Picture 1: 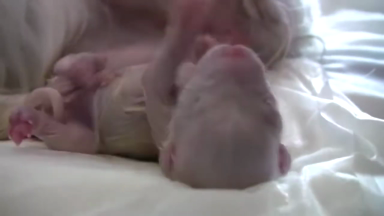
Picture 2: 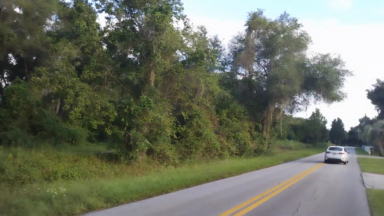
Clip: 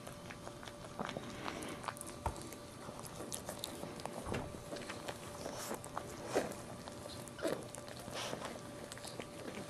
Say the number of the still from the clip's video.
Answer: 1